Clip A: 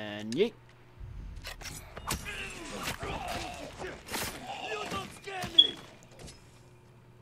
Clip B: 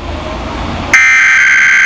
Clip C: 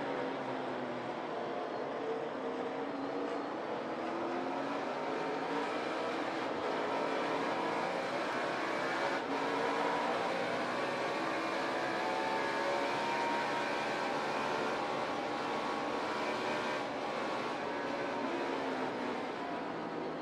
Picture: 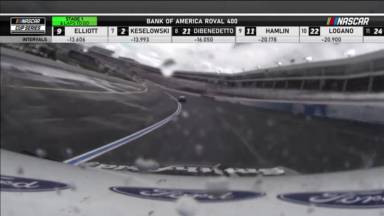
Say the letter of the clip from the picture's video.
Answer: C